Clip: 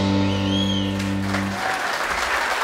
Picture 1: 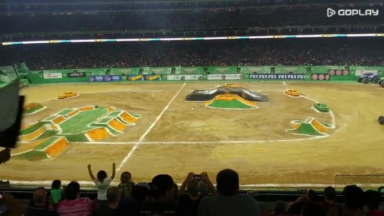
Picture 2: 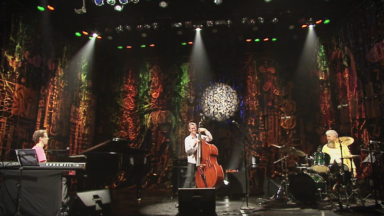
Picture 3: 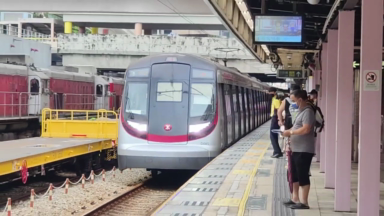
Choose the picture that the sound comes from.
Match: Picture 2